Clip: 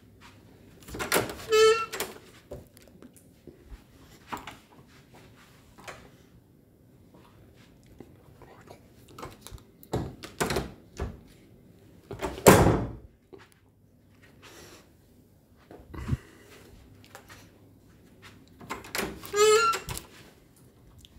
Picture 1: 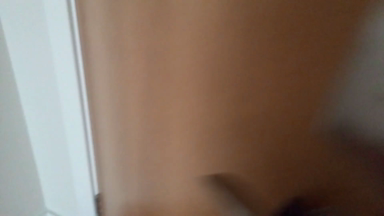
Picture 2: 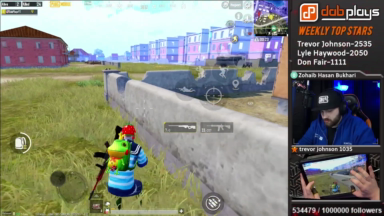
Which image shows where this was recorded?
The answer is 1